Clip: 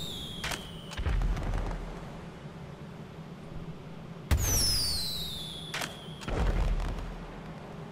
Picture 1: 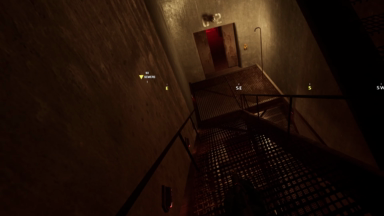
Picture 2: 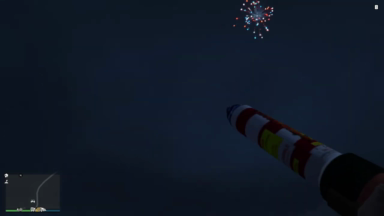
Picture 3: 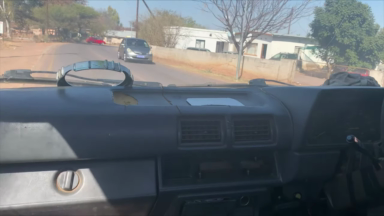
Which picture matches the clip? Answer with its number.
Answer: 2